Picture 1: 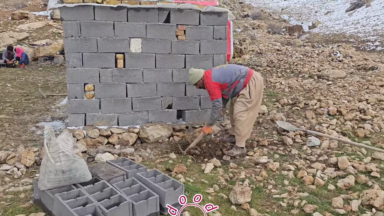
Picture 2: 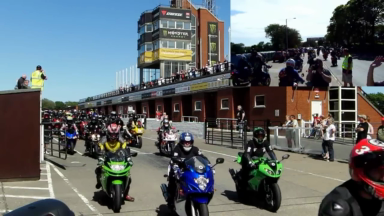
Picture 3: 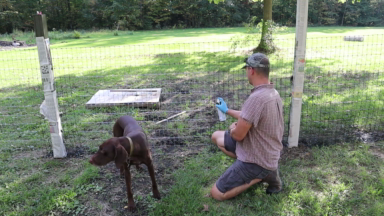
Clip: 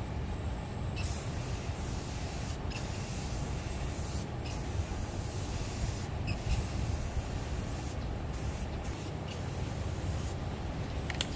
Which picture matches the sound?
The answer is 3